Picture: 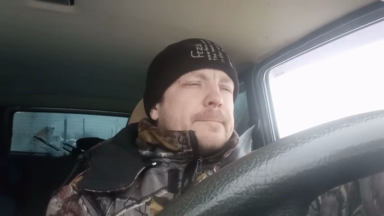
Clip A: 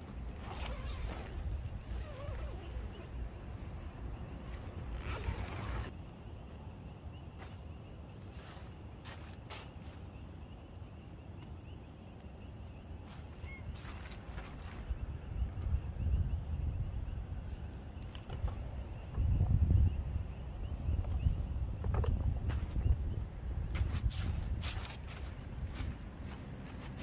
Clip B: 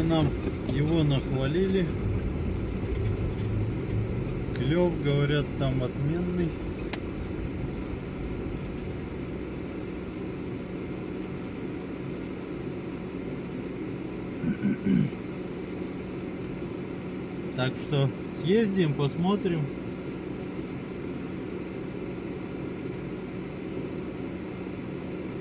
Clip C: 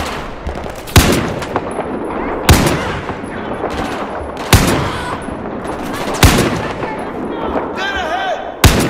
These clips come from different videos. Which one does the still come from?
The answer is B